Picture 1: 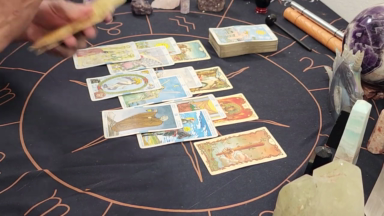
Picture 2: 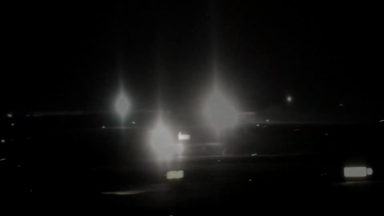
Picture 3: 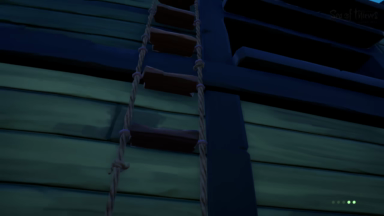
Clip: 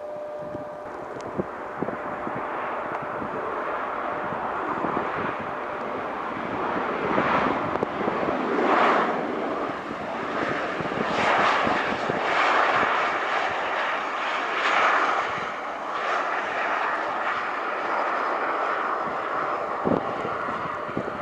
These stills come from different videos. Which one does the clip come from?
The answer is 2